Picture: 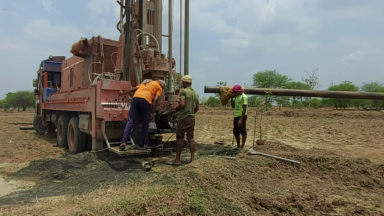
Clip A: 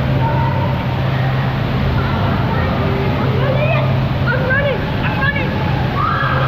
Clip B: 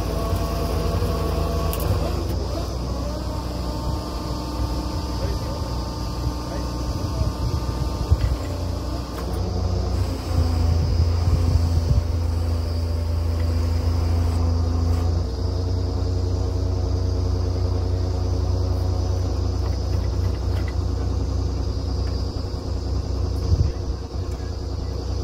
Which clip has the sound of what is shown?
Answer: B